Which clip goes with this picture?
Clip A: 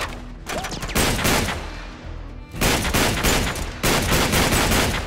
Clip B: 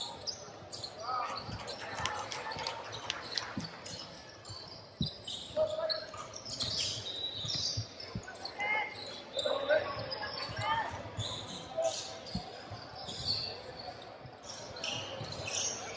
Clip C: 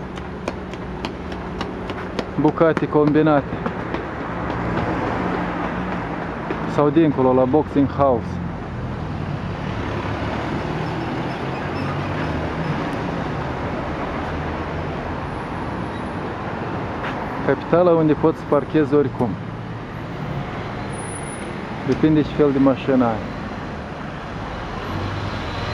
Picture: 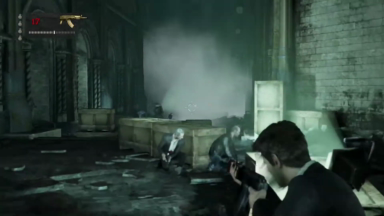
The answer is A